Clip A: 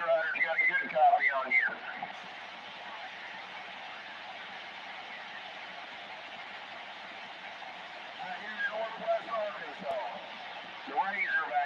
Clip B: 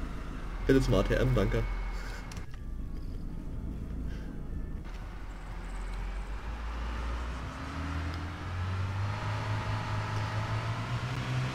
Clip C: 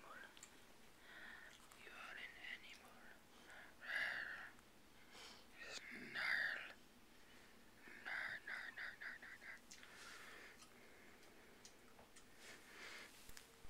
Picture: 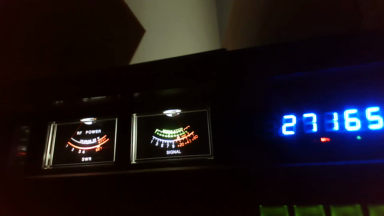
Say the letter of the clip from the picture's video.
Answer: A